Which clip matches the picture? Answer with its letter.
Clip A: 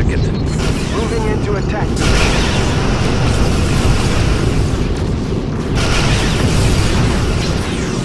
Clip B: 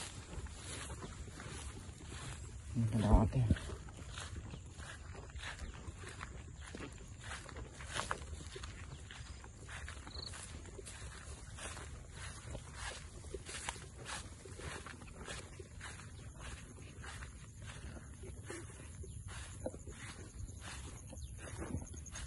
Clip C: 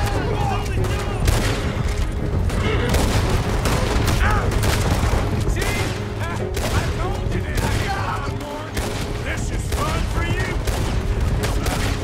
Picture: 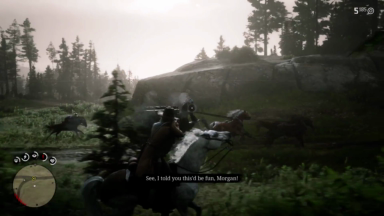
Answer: C